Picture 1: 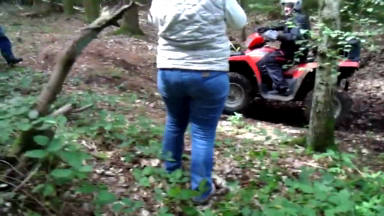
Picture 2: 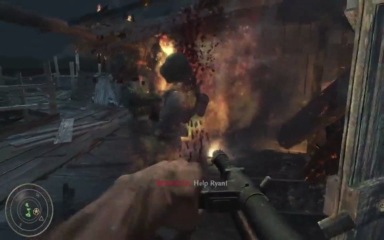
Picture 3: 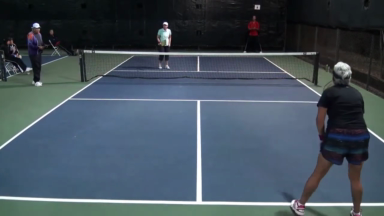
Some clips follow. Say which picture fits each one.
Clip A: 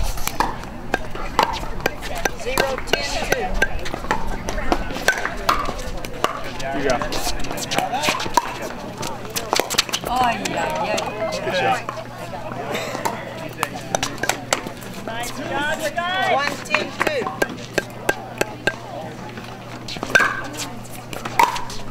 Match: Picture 3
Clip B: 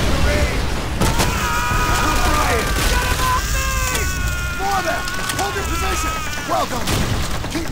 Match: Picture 2